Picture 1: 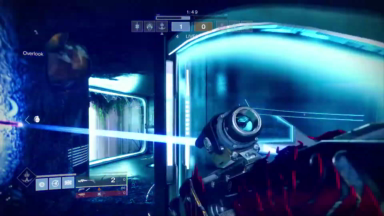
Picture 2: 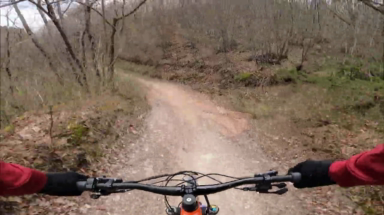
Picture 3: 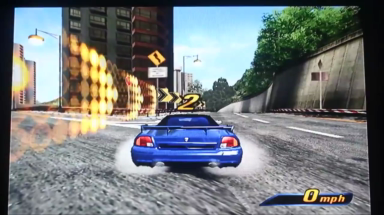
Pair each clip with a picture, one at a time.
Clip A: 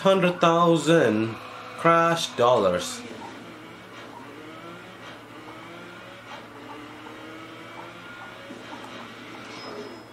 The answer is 3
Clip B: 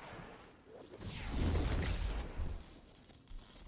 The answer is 1